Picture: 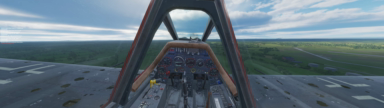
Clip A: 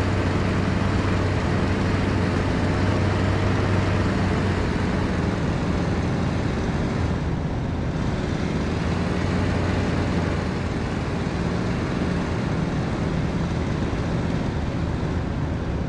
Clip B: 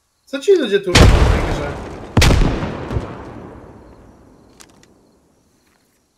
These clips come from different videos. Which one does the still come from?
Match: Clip A